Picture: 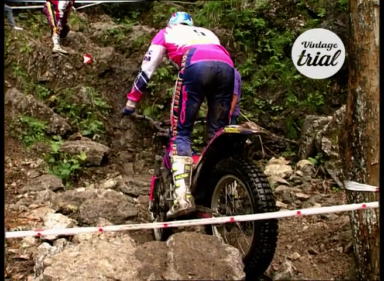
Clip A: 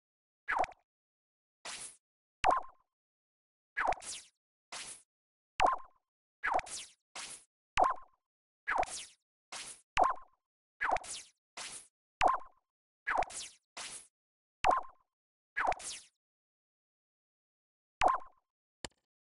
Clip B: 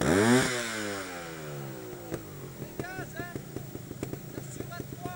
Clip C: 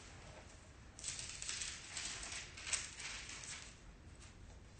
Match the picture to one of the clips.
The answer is B